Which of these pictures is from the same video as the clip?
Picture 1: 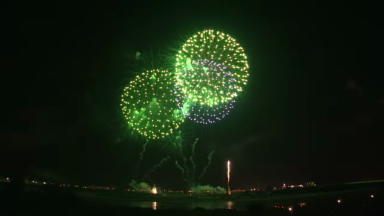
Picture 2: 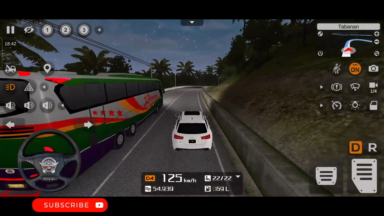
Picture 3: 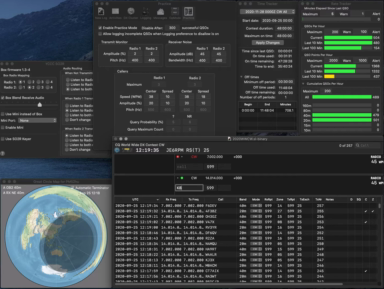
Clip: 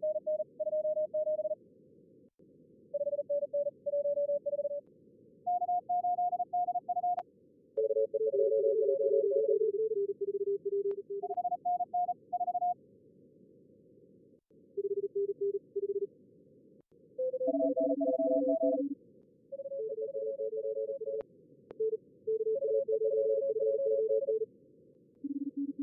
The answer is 3